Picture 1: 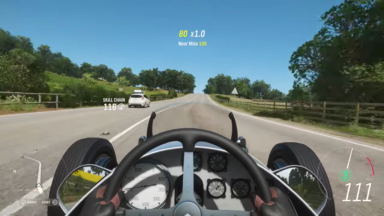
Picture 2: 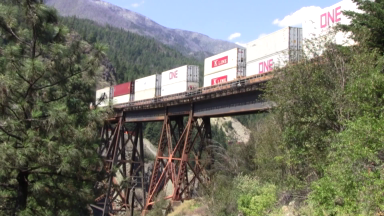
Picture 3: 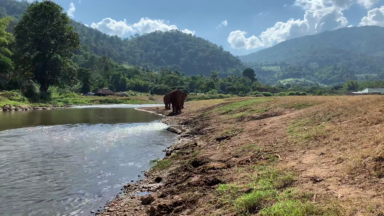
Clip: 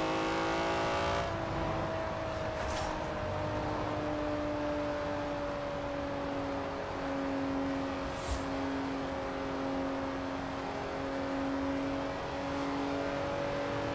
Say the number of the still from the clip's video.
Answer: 1